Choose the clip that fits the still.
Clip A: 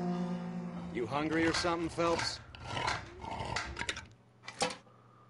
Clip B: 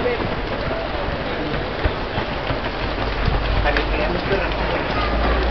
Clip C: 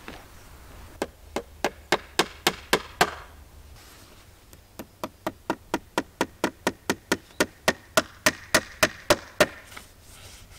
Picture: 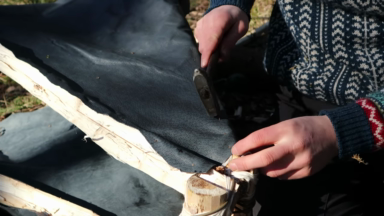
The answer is C